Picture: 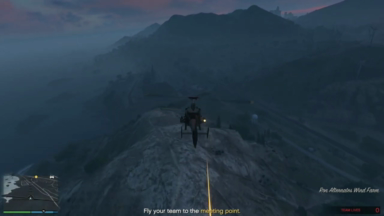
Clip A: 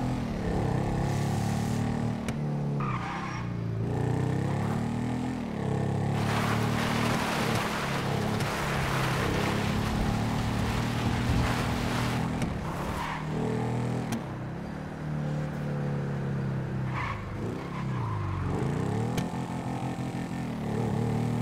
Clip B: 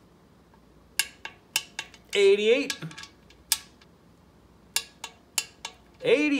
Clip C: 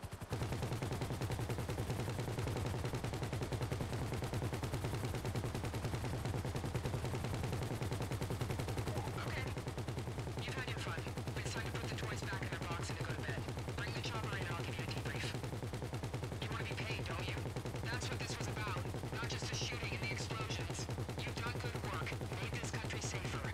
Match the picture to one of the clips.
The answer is C